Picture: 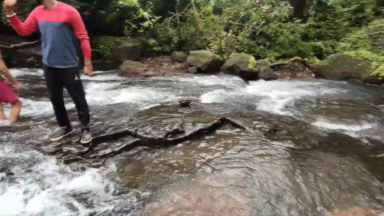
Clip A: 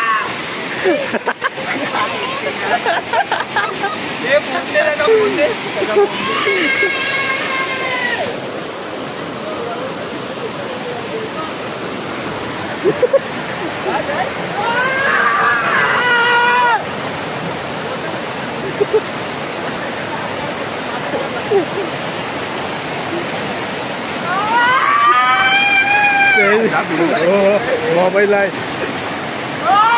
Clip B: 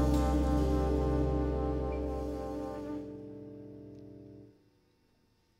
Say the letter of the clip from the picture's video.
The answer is A